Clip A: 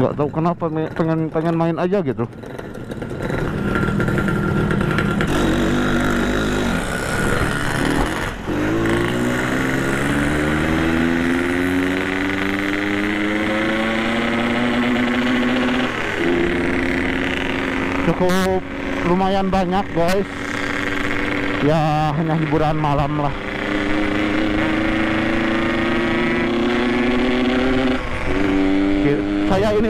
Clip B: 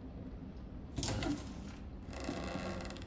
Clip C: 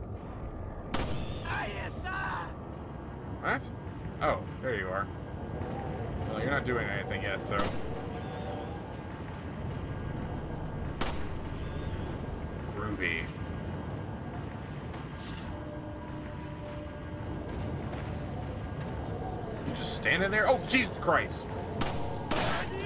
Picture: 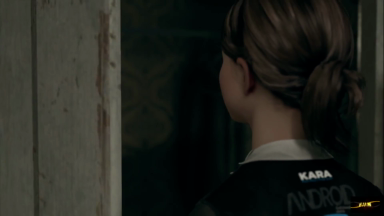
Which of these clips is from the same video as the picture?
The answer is B